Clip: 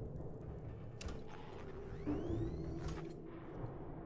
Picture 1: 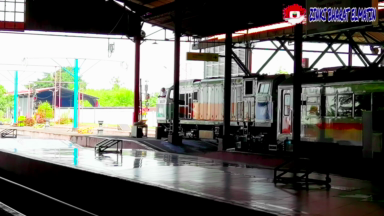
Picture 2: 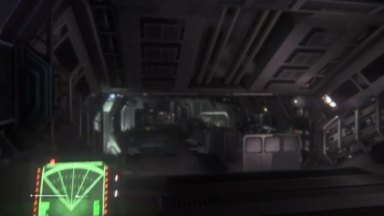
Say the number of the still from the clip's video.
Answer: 2